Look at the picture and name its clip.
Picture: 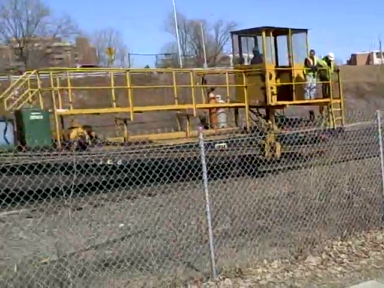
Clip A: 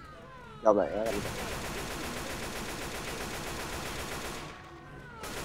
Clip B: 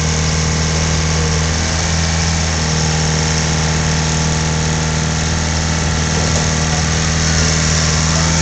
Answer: B